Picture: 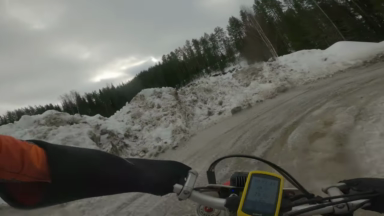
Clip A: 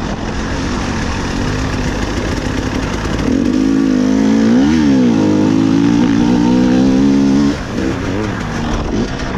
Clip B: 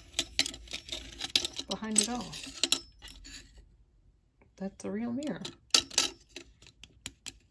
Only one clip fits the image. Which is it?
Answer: A